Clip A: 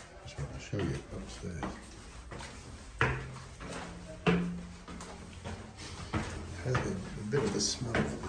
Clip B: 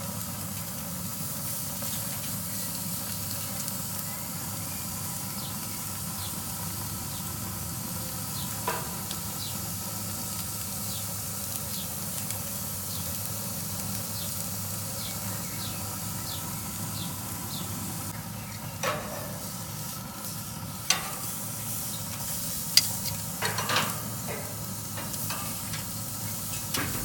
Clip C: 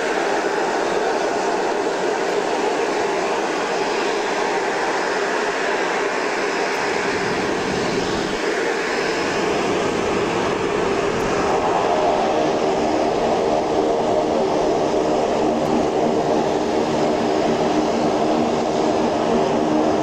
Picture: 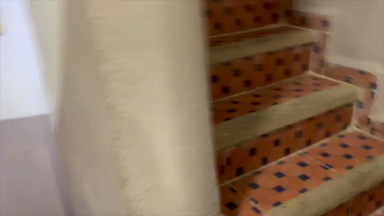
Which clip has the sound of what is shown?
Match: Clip A